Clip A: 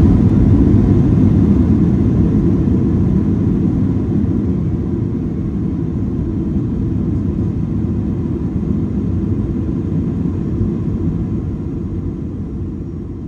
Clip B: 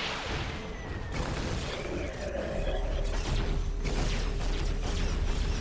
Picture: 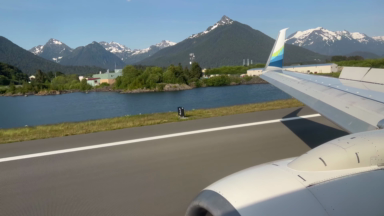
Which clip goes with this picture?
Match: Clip A